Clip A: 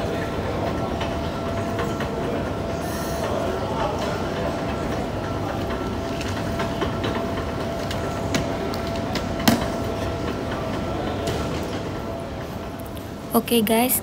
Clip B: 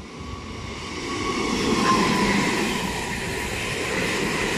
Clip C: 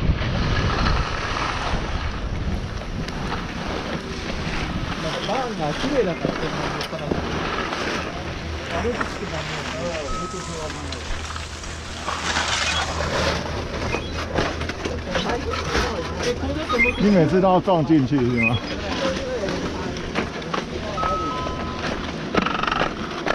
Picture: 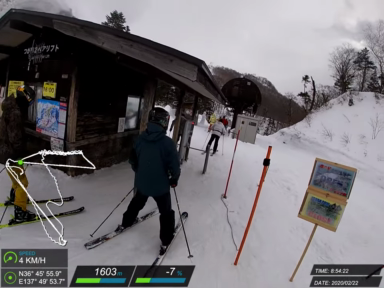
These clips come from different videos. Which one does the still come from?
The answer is C